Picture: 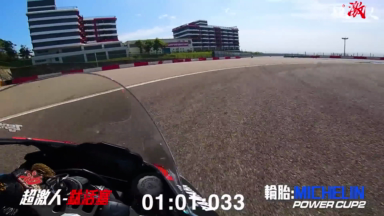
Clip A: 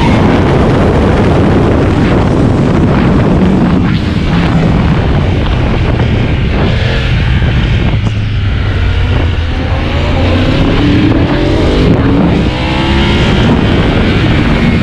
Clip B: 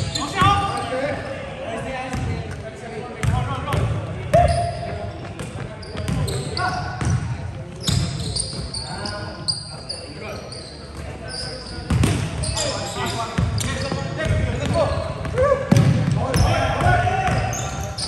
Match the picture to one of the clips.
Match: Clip A